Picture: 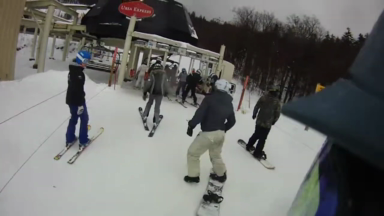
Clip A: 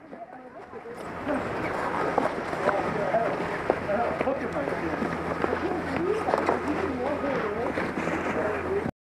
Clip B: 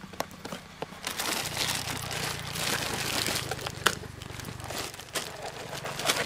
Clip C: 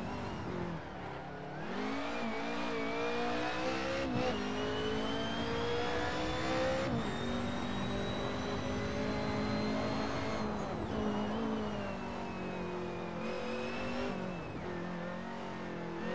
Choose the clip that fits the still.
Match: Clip A